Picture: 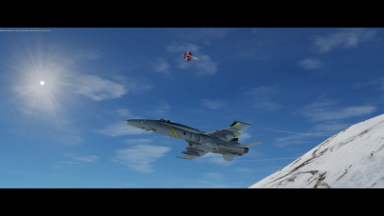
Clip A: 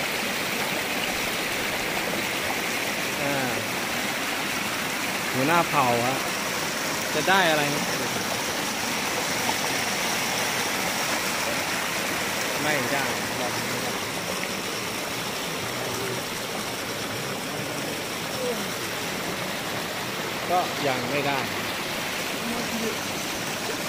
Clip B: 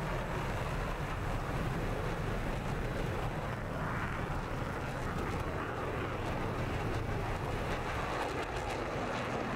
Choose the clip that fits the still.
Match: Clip B